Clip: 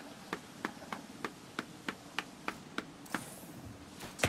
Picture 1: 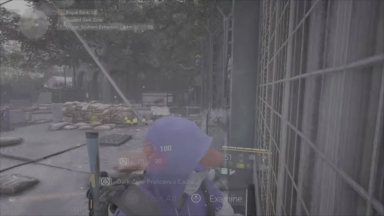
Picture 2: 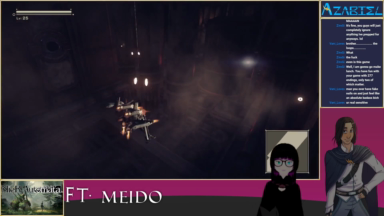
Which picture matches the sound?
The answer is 1